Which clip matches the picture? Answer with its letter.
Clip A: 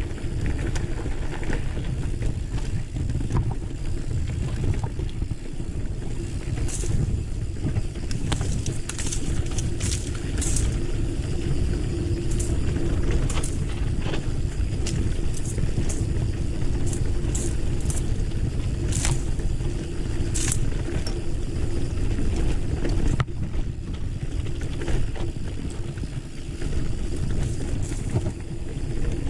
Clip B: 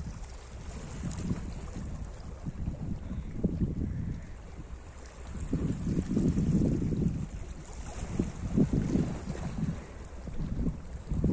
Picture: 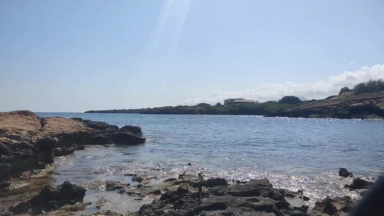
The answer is B